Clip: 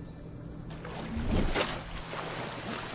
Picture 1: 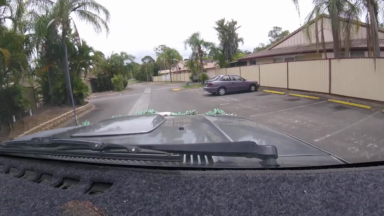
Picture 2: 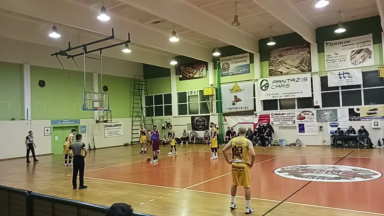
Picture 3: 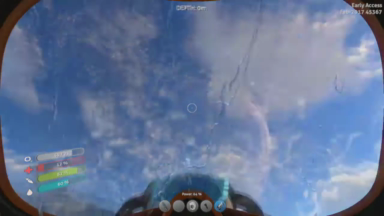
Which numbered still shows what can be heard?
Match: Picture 3